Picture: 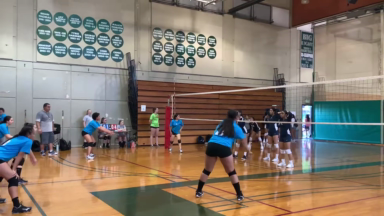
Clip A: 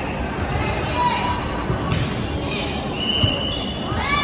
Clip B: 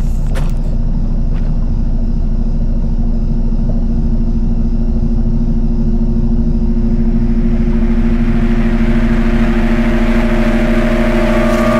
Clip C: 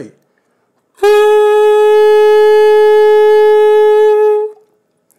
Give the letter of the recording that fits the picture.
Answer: A